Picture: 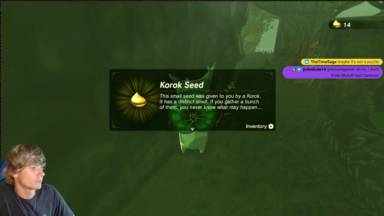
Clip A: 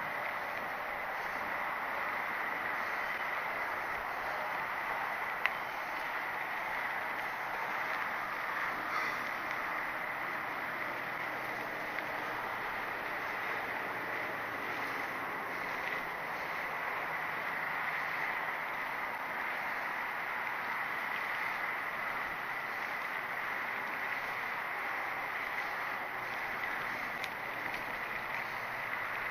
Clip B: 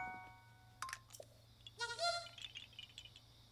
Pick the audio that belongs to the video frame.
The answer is B